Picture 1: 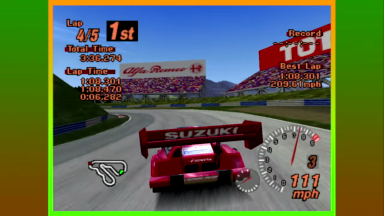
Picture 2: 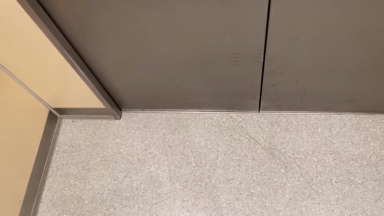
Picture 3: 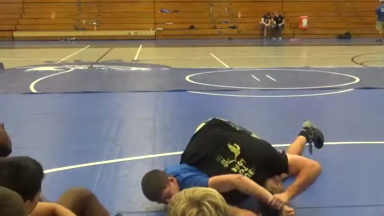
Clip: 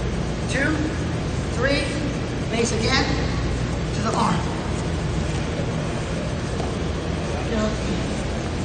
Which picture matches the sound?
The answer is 3